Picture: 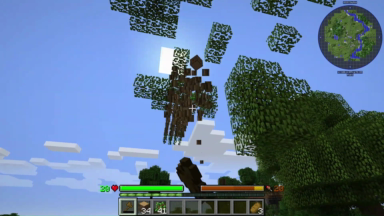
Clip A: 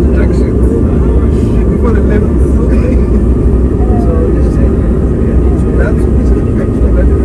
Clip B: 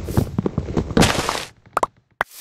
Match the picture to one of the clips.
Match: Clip B